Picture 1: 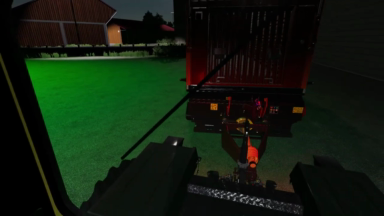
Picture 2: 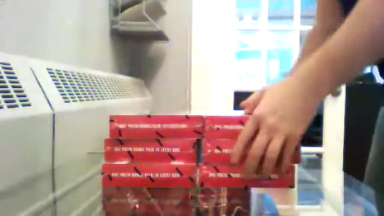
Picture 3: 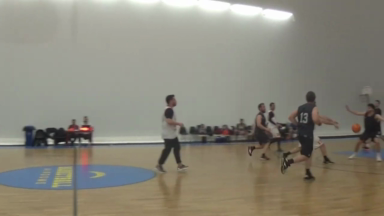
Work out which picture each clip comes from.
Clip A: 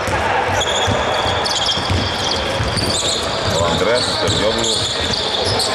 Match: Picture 3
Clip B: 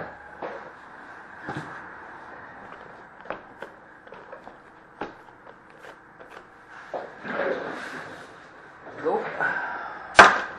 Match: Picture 2